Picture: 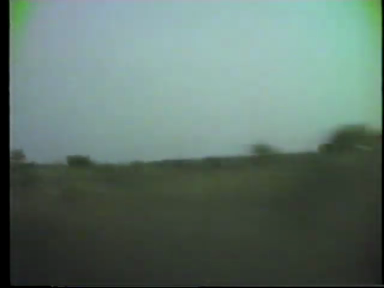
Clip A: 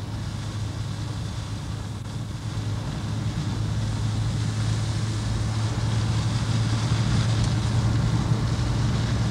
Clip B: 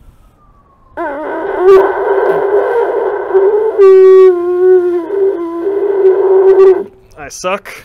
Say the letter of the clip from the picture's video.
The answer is A